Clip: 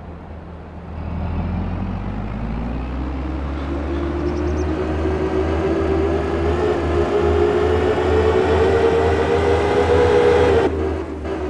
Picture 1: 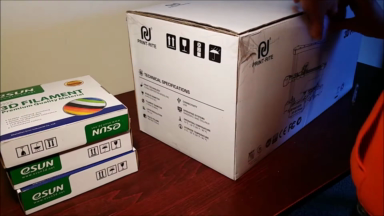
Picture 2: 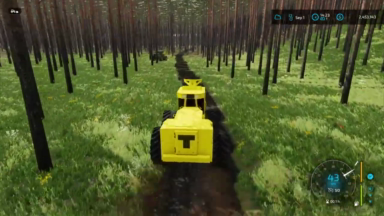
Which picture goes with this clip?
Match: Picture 2